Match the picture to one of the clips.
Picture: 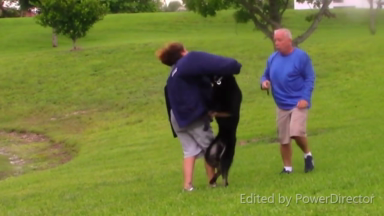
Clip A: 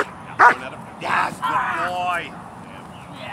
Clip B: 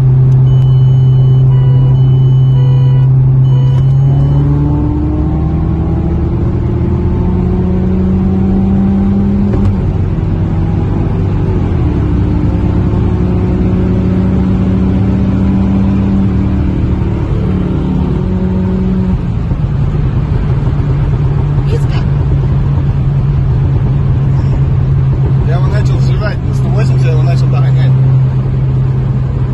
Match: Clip A